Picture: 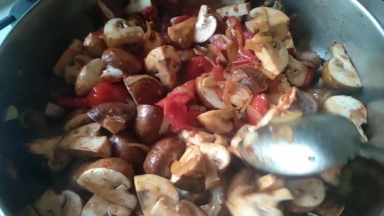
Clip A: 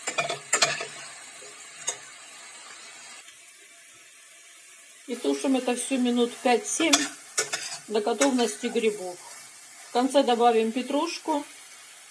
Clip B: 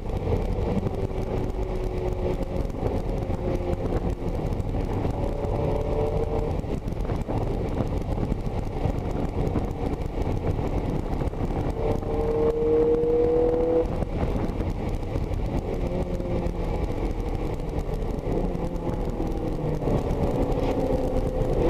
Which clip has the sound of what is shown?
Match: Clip A